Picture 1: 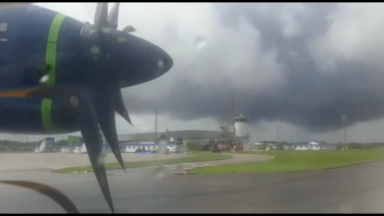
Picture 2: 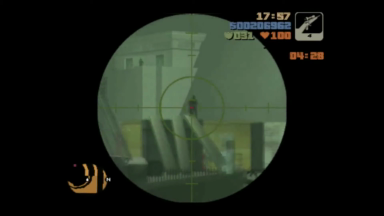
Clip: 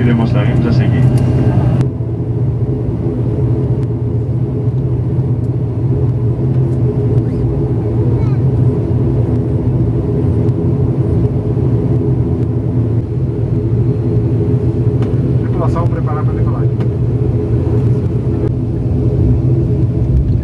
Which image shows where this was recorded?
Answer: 1